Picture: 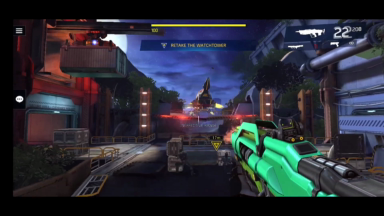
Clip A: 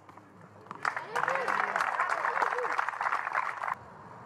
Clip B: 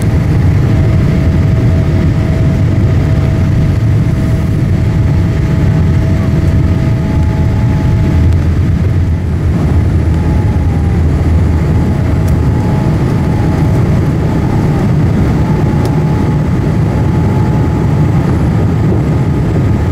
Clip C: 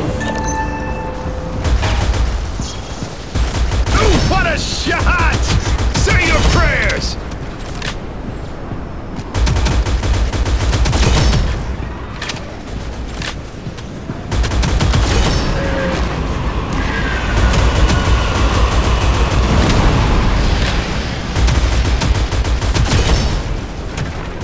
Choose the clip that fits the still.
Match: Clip C